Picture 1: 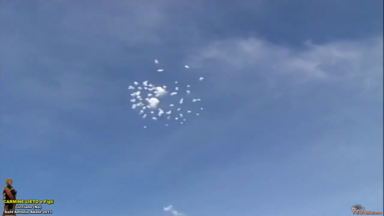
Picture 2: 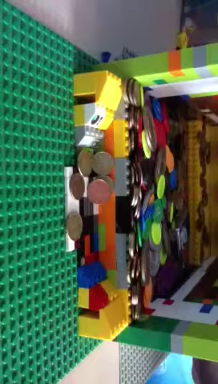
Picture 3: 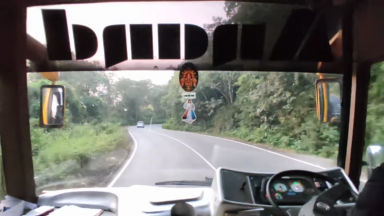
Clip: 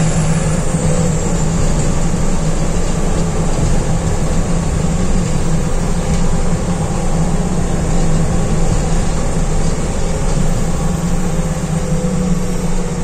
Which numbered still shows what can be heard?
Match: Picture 3